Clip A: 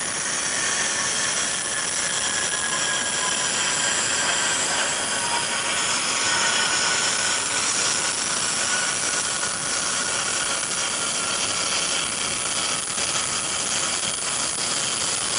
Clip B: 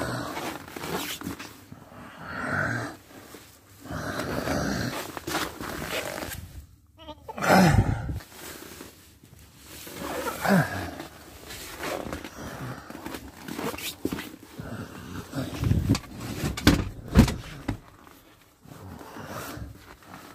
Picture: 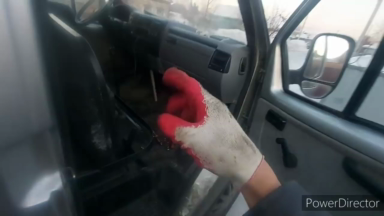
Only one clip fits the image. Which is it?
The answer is B